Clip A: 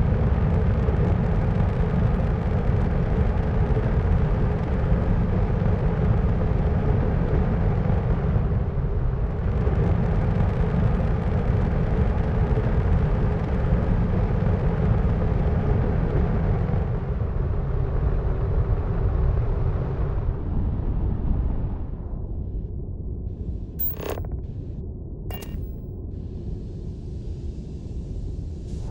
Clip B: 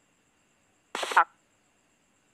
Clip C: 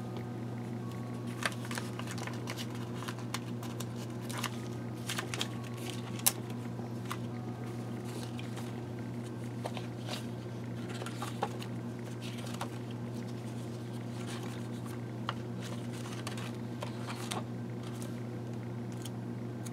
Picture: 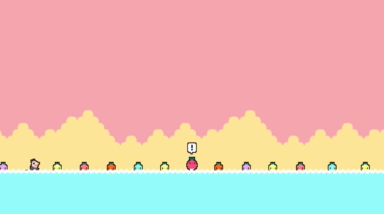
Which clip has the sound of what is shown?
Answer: B